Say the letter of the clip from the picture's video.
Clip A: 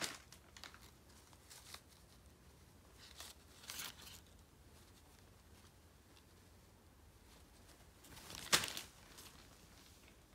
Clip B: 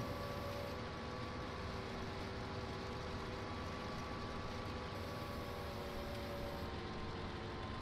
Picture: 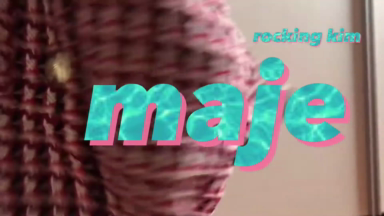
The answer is A